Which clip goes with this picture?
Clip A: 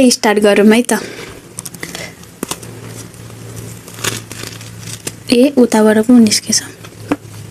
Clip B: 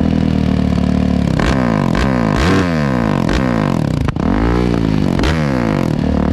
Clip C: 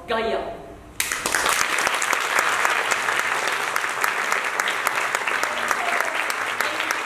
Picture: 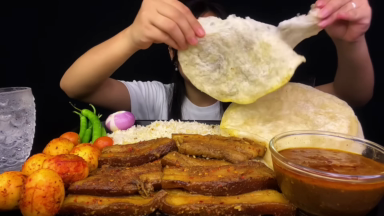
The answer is A